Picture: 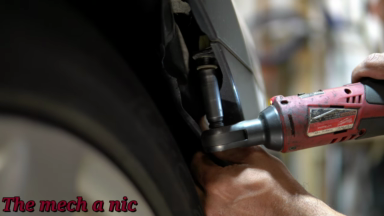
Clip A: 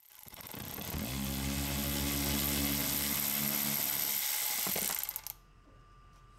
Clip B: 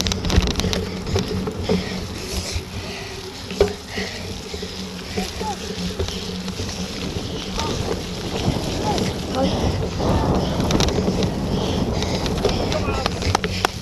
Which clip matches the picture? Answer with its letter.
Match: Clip A